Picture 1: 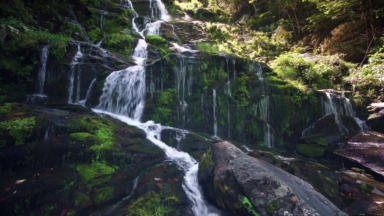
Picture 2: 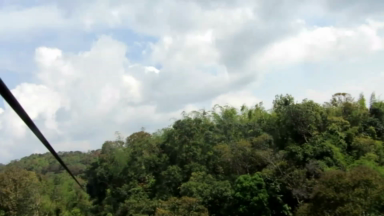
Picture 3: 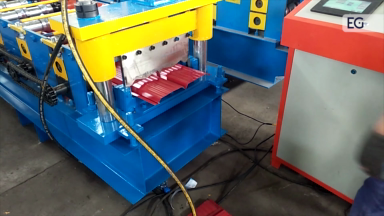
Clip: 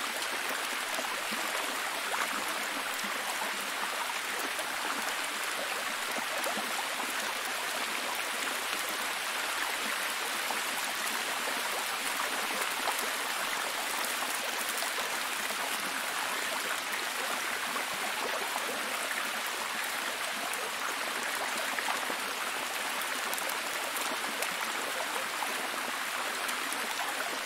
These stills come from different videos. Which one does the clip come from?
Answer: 1